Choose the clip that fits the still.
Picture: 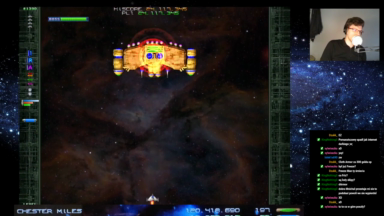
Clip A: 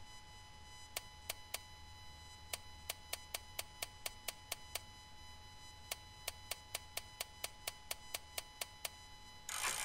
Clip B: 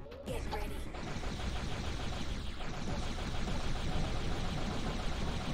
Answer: B